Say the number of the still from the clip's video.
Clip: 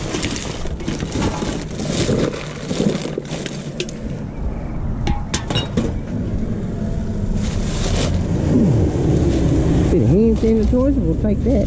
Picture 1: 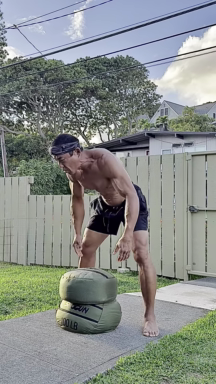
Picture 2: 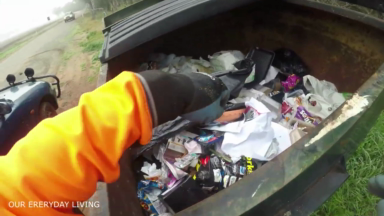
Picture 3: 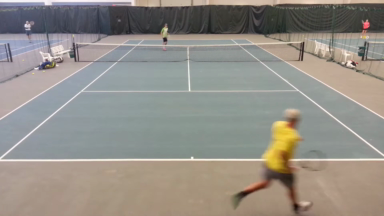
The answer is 2